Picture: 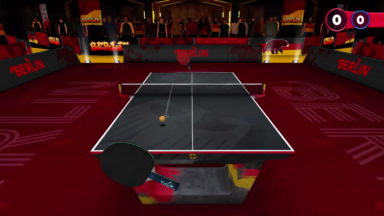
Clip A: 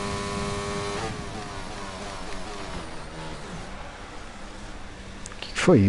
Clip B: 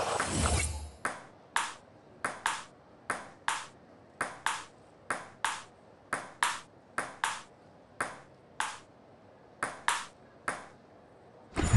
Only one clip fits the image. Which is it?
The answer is B